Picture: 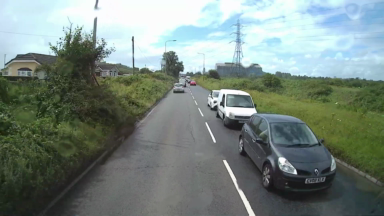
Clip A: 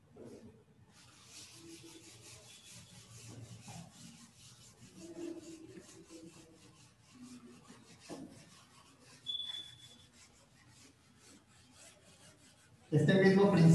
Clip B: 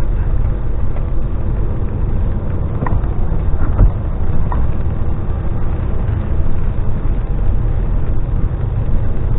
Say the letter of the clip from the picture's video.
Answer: B